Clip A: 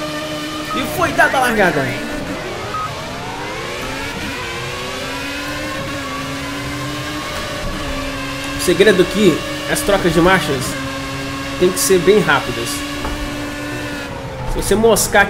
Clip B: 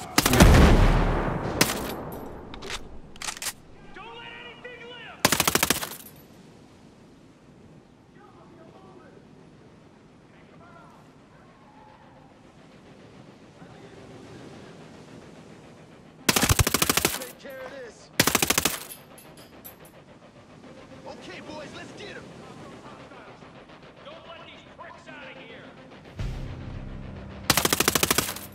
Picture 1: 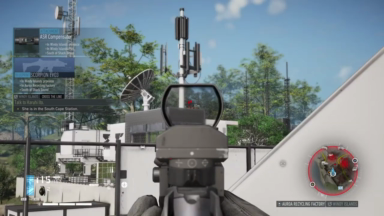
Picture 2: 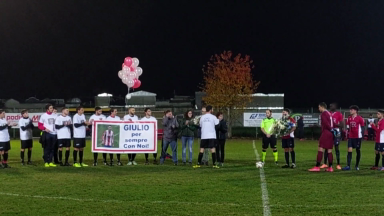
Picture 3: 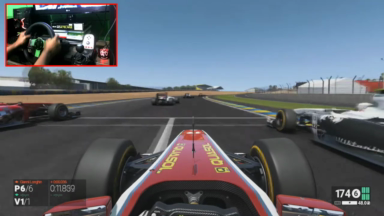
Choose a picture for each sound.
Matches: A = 3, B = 1